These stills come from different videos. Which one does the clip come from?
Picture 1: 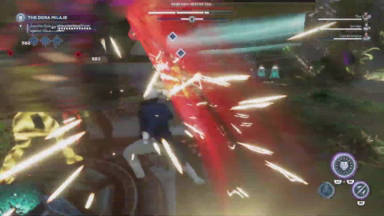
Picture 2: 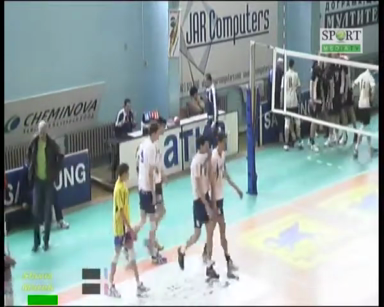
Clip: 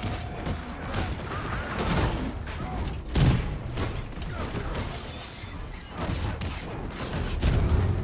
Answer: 1